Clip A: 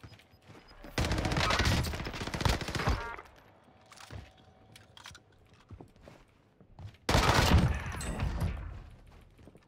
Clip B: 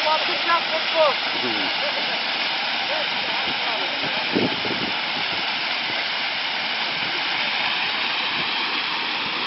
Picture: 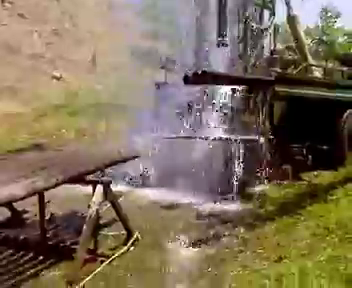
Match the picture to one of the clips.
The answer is B